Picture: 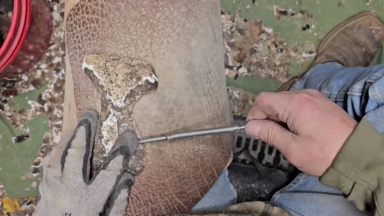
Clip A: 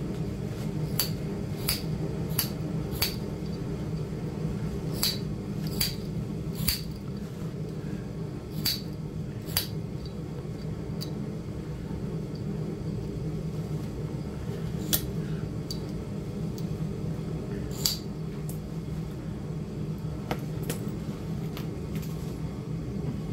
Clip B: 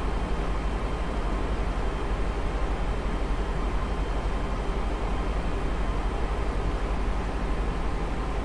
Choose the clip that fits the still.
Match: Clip A